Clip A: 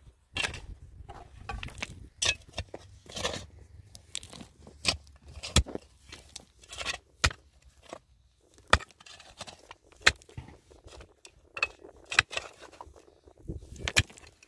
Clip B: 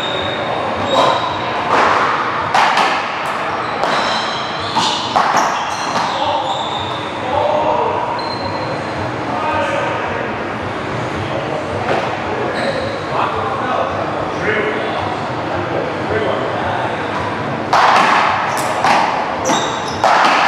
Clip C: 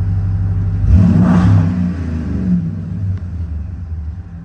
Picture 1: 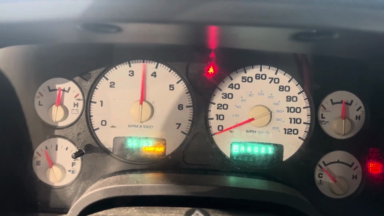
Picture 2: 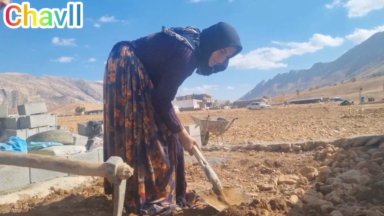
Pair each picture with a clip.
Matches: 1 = C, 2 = A